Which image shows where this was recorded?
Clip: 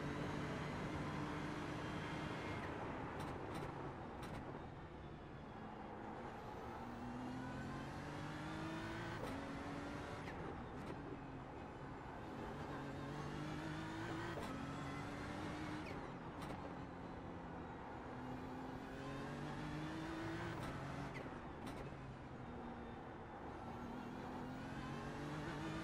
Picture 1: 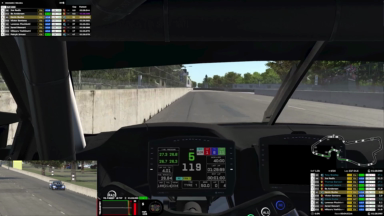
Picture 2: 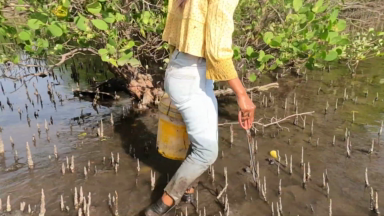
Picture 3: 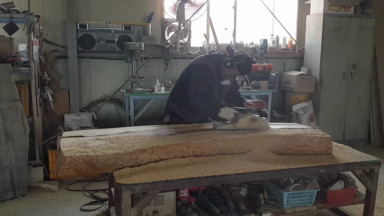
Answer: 1